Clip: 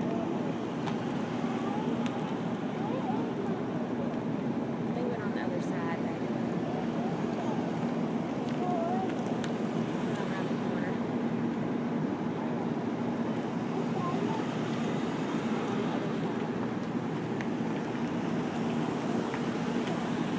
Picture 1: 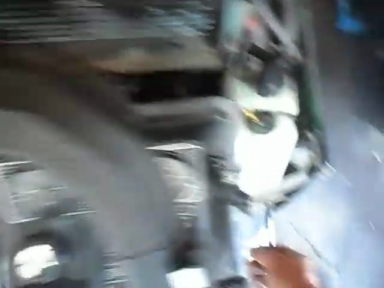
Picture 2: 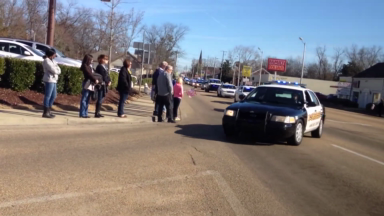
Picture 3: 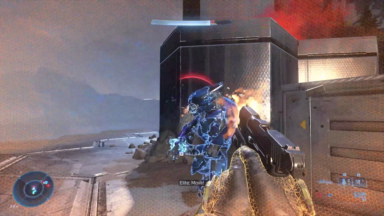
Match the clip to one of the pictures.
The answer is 2